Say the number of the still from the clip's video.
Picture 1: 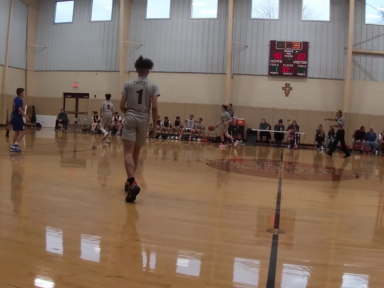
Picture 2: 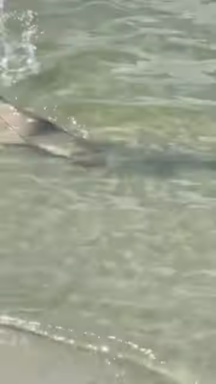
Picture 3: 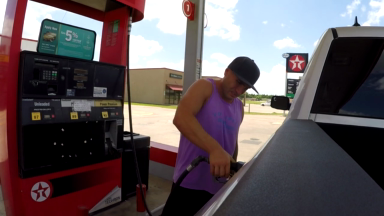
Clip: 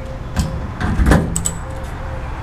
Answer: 3